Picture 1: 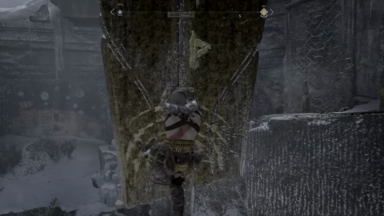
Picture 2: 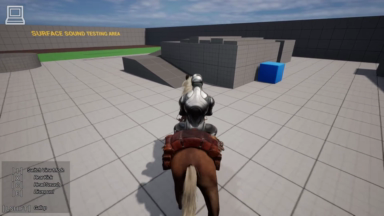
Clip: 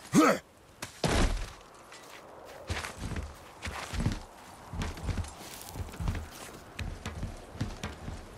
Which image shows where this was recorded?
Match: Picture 1